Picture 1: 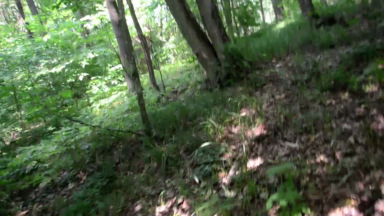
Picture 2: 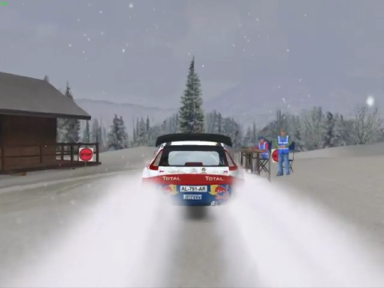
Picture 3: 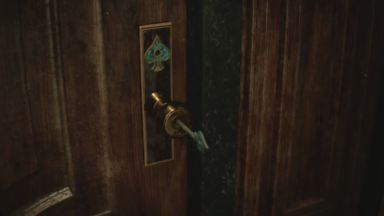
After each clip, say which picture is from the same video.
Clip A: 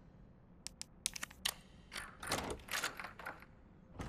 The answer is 3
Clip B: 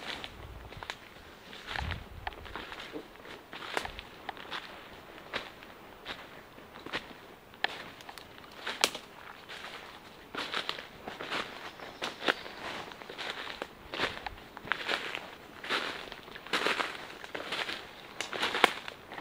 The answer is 1